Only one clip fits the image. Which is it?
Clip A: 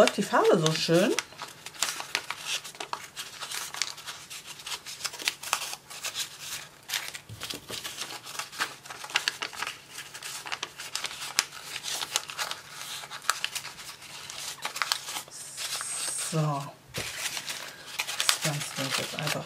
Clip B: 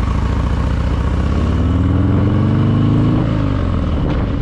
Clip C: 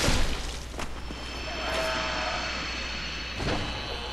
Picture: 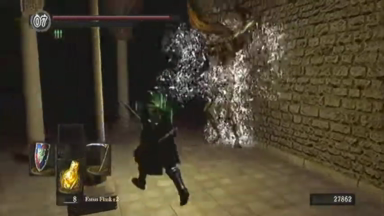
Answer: C